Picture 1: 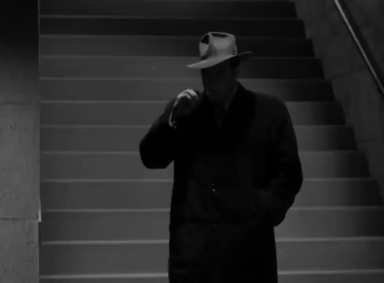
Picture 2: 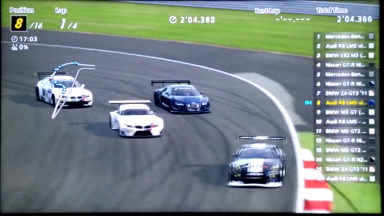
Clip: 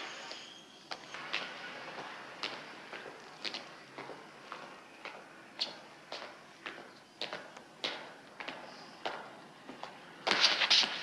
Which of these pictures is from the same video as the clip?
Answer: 1